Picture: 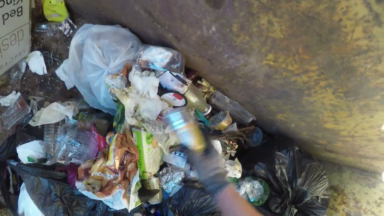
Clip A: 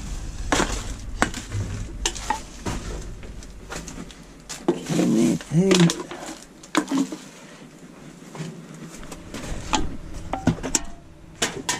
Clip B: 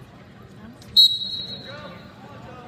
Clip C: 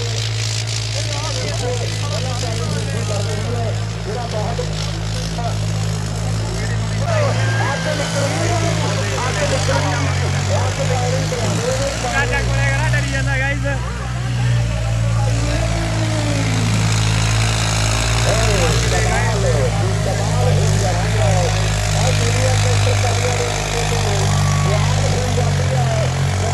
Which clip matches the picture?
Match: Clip A